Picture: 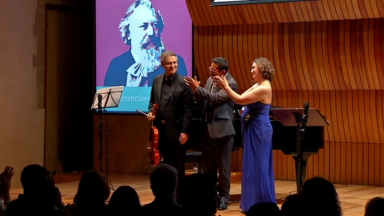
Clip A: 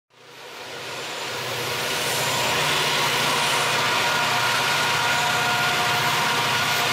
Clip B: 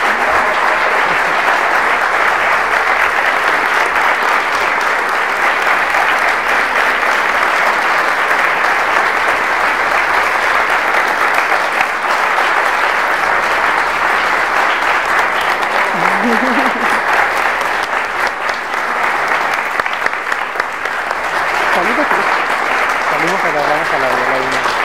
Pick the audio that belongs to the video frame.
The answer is B